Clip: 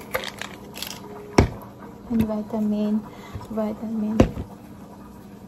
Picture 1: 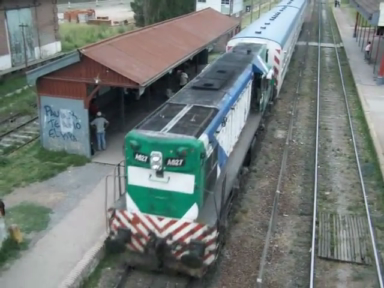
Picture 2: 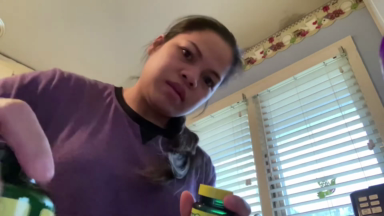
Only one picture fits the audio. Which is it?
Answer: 2